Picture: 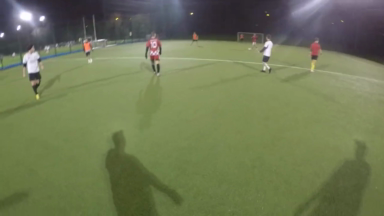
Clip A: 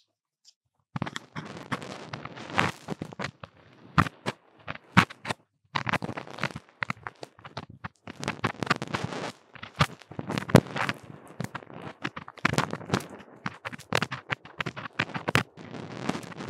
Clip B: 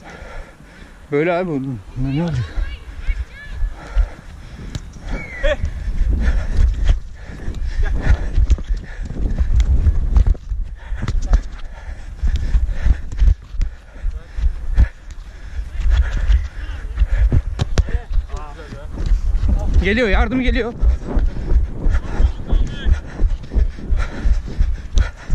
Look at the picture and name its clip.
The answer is B